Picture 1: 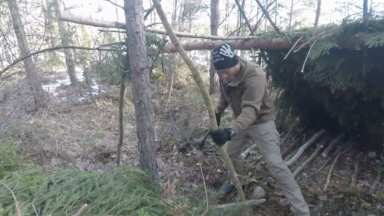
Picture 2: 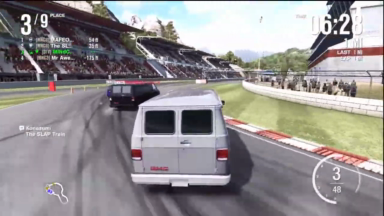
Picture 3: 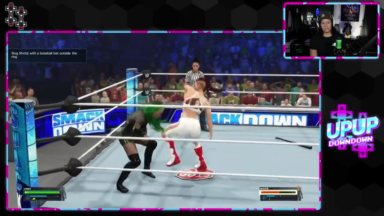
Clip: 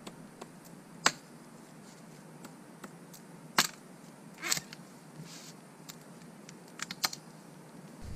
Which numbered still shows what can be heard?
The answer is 1